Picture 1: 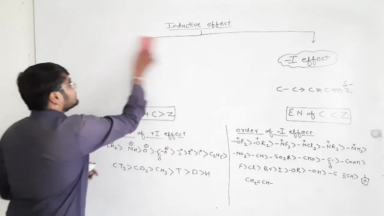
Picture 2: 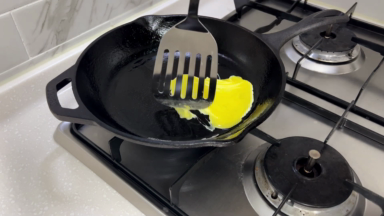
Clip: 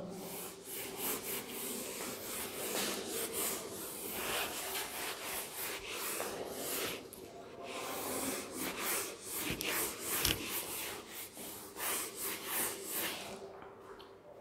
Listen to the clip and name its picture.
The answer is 1